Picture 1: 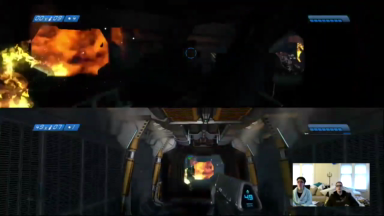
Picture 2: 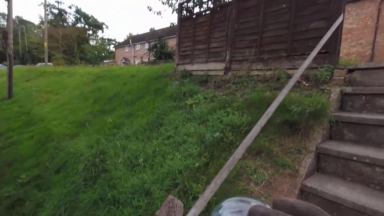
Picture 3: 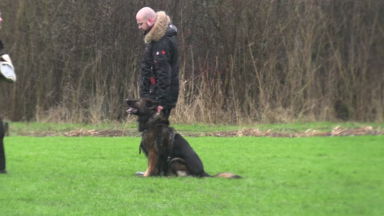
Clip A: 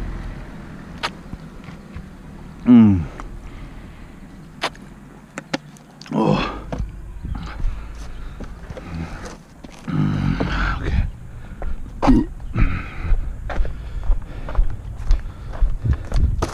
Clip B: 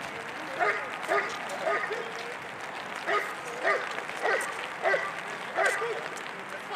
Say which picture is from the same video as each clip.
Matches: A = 2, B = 3